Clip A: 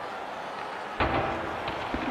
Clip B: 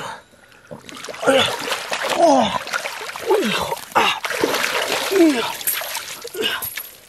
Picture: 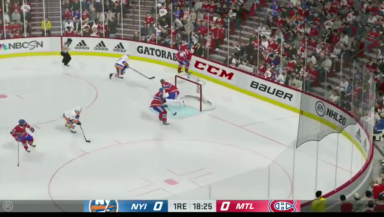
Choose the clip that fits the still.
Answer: A